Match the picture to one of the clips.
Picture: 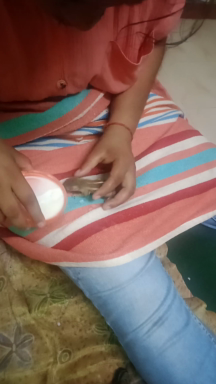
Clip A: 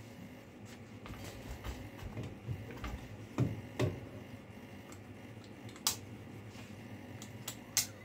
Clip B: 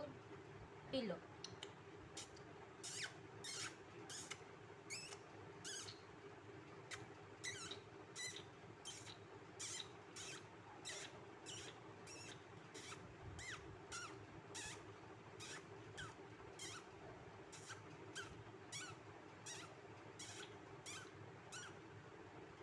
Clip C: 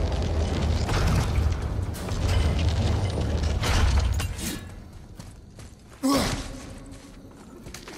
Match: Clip B